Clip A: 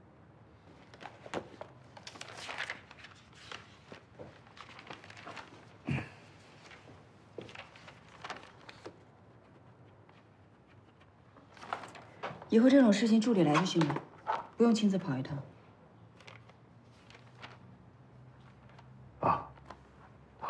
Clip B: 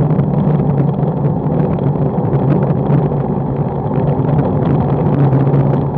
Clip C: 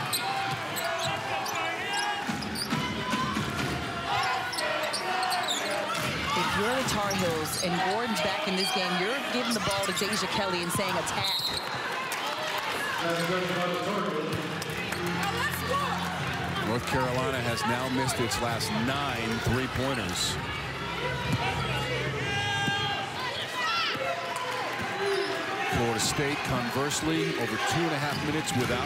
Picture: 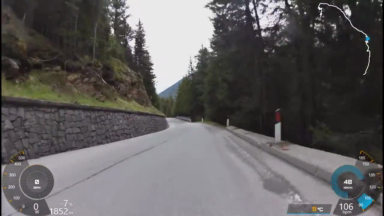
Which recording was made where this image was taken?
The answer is B